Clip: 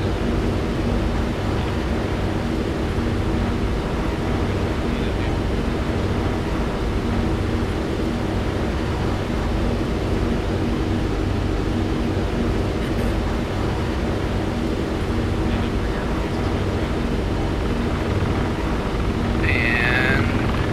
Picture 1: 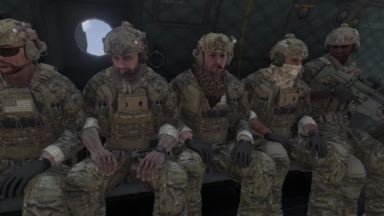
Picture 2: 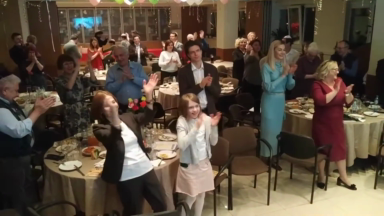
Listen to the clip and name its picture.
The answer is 1